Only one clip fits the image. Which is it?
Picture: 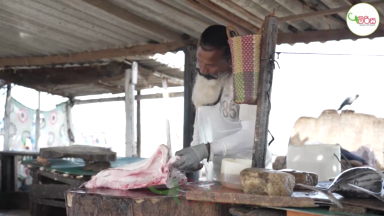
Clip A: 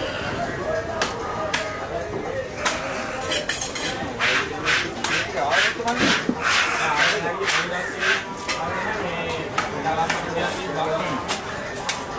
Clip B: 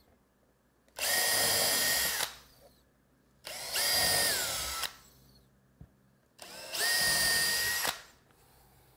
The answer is A